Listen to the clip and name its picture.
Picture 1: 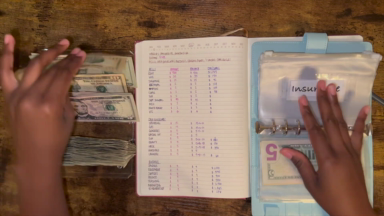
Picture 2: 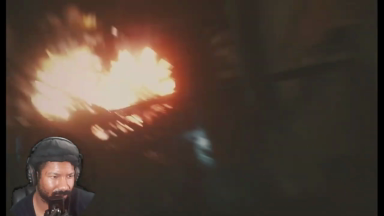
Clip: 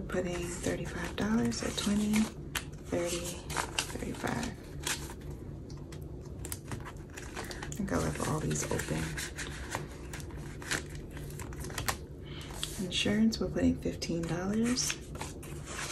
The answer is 1